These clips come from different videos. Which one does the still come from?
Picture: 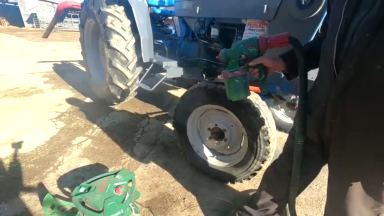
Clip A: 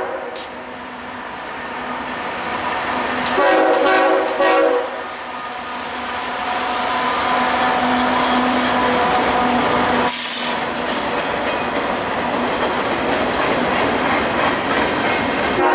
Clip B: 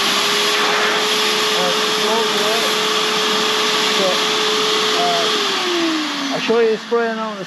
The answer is B